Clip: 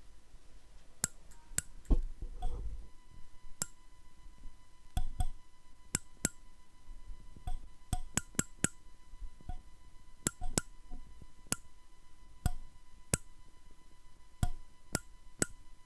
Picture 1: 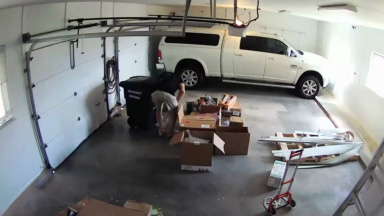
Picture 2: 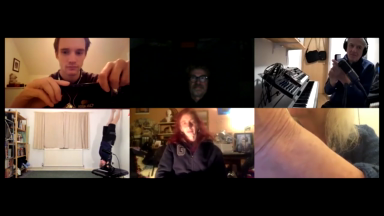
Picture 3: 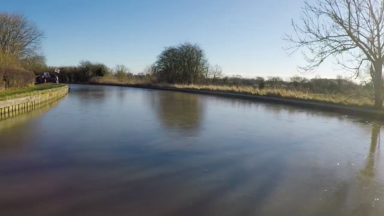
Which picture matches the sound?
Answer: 2